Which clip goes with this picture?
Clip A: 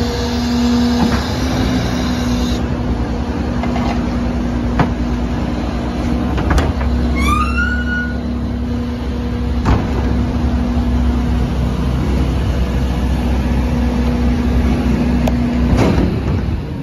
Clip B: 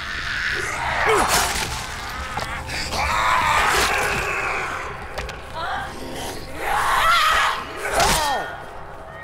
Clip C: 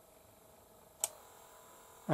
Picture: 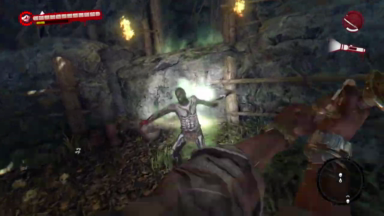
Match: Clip B